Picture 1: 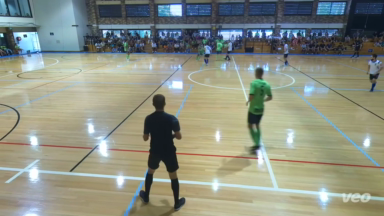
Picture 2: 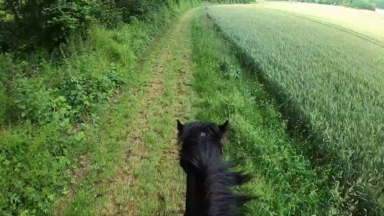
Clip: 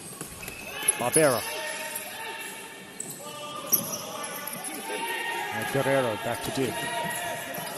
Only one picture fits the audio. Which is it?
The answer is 1